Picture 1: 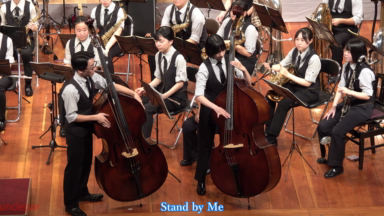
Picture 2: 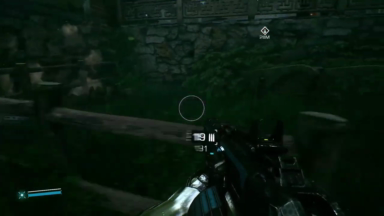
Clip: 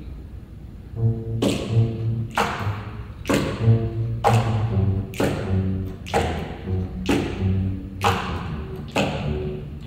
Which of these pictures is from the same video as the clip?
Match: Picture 1